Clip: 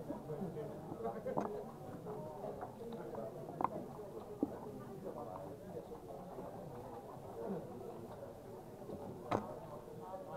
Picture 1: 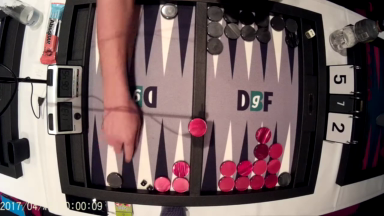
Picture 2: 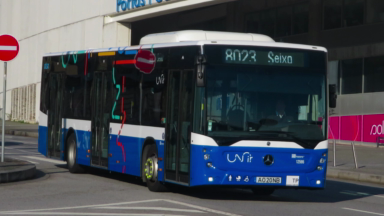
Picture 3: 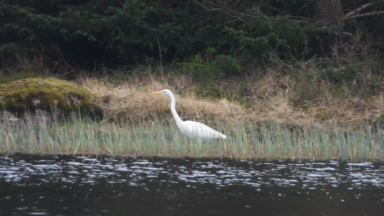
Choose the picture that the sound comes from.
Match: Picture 1